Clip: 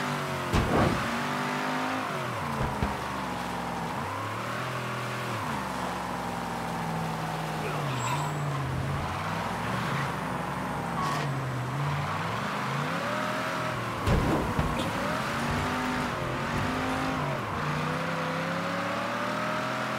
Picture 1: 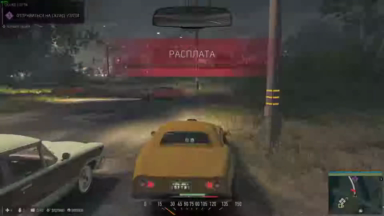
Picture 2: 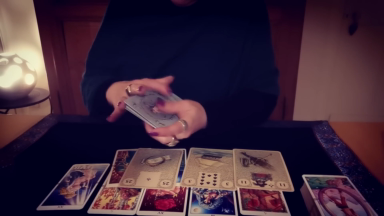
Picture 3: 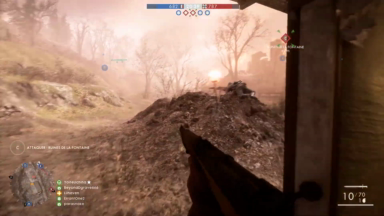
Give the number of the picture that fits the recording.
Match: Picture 1